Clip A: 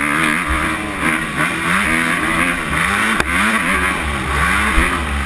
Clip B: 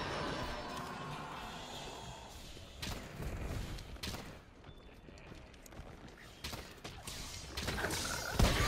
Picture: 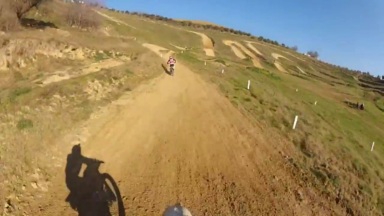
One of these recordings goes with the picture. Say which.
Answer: A